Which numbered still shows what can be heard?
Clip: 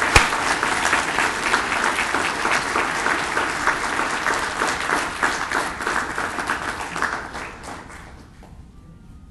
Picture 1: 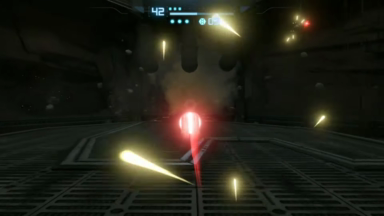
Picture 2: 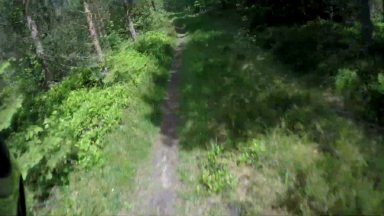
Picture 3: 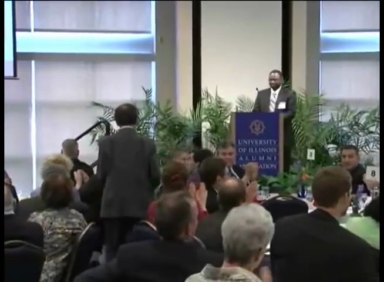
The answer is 3